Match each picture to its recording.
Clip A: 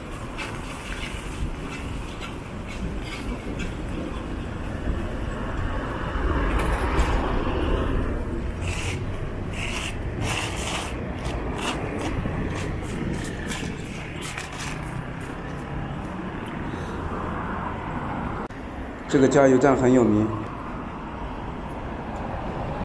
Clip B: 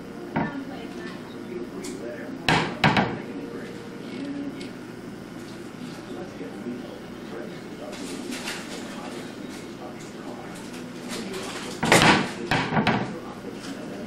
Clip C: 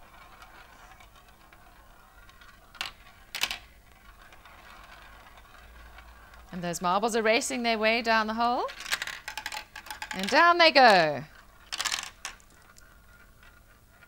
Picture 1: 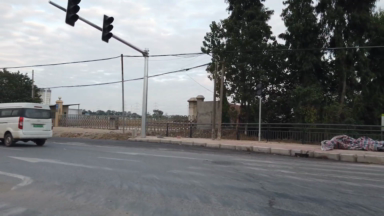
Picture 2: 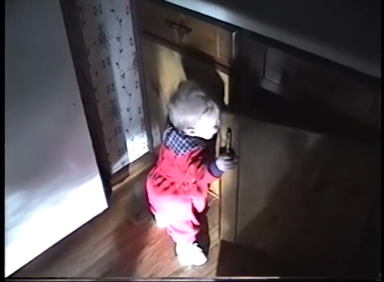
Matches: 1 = A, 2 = B